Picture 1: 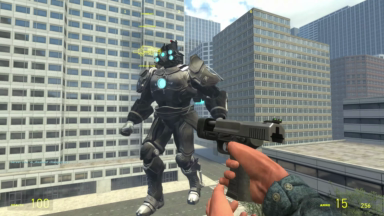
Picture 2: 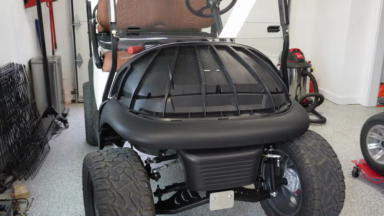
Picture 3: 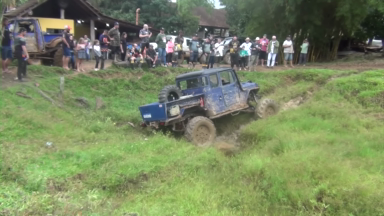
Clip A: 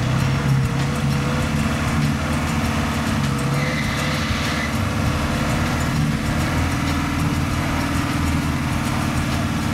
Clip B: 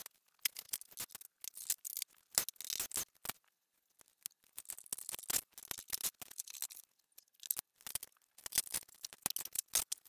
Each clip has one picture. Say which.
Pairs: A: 3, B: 2